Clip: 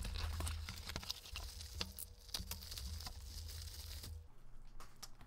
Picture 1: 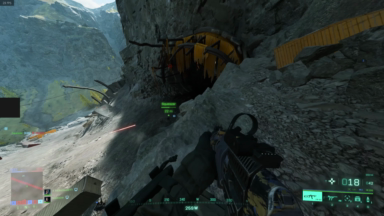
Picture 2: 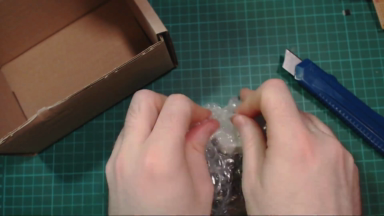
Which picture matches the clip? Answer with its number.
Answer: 2